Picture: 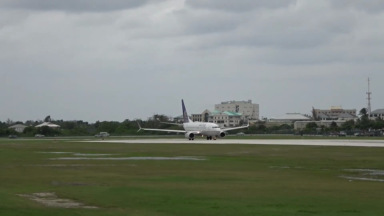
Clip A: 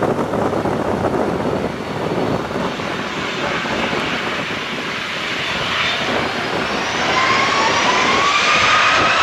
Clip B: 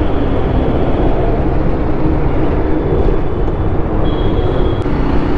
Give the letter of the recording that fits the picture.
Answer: A